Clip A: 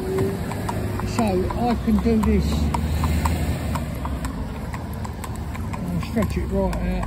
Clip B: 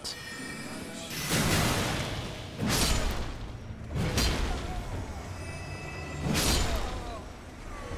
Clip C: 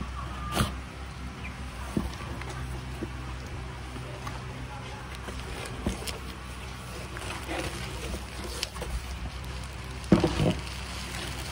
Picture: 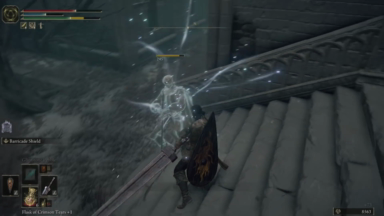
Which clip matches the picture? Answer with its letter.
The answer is B